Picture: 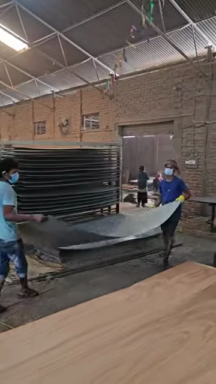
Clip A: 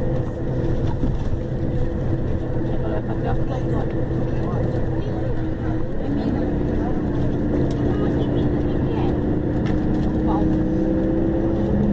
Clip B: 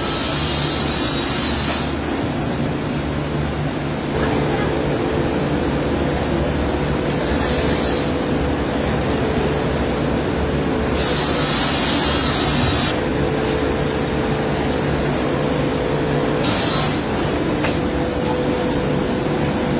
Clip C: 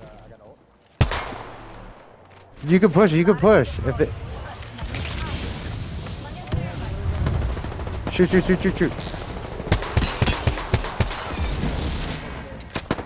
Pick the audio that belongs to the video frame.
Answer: B